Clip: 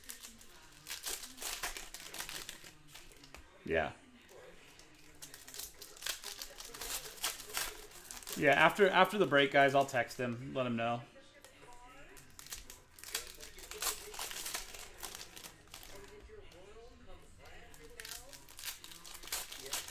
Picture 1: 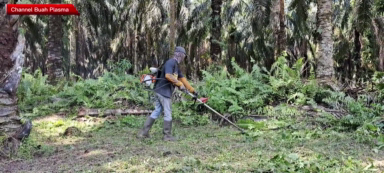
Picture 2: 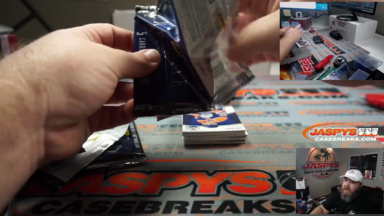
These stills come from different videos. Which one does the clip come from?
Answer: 2